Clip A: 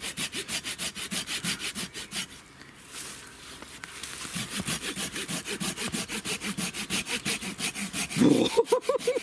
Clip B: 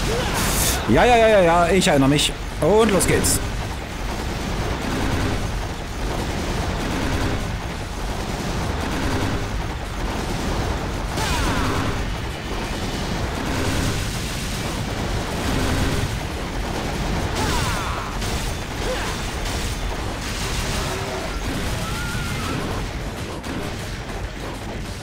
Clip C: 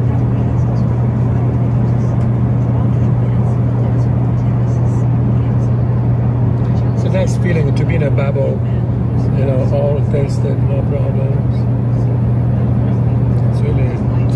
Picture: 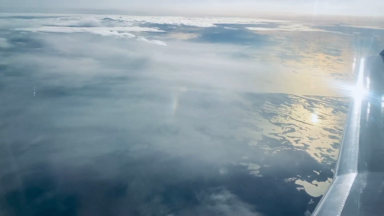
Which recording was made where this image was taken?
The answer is C